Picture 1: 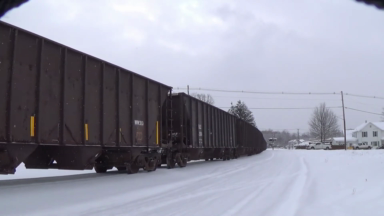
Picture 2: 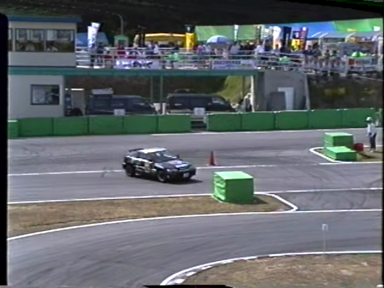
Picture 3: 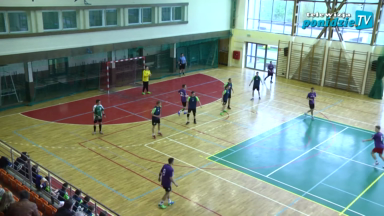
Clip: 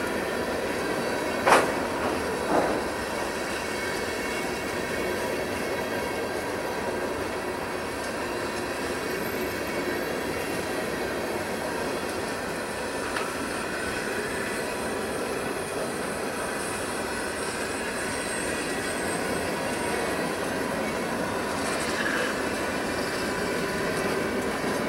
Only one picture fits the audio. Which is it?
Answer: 1